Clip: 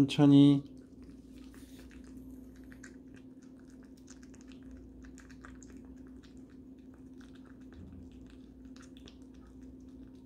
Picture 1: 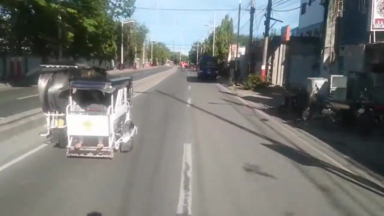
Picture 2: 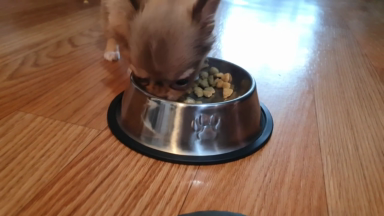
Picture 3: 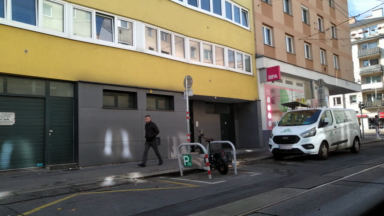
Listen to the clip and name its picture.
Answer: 2